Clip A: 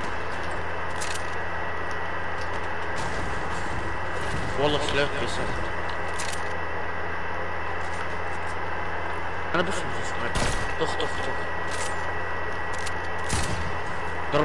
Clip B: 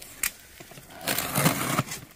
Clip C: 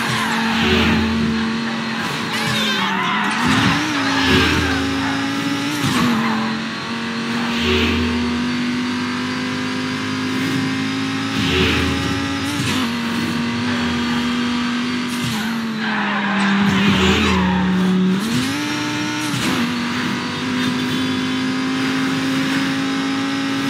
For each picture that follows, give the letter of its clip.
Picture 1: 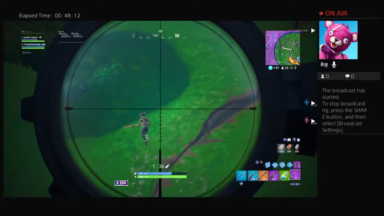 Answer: A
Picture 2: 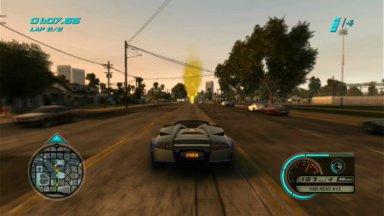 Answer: C